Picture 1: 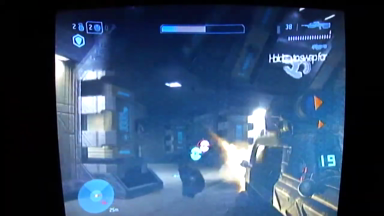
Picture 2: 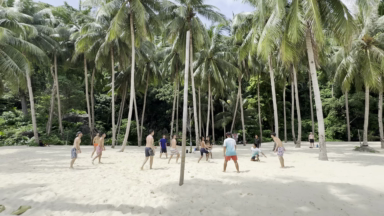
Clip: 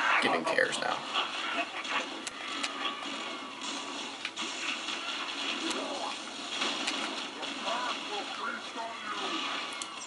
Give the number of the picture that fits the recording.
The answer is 1